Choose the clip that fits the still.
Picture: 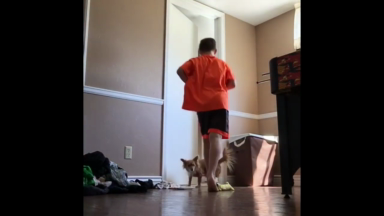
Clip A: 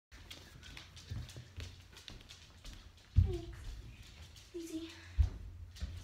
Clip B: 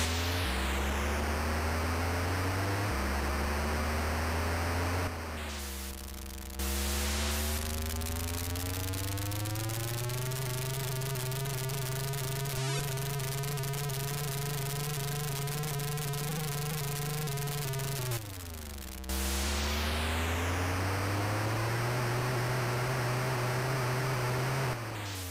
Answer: A